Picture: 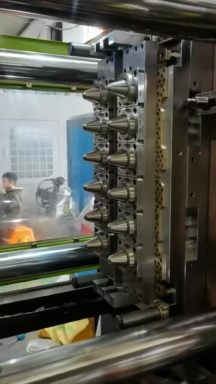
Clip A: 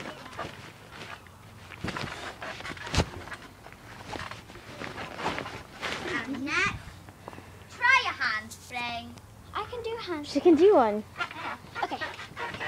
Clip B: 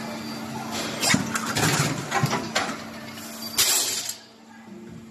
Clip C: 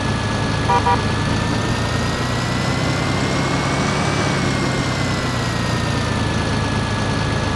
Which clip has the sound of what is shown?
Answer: B